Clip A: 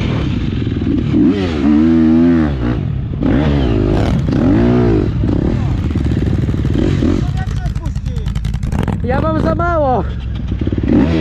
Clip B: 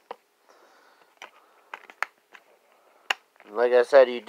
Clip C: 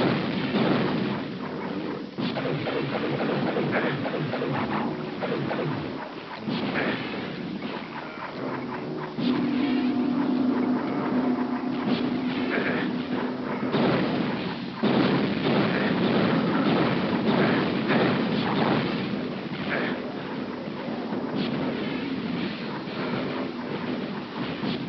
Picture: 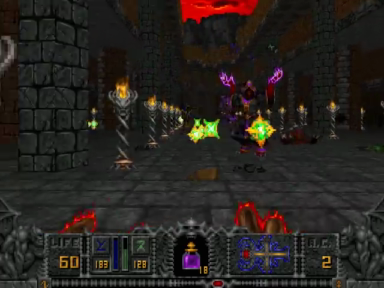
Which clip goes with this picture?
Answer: C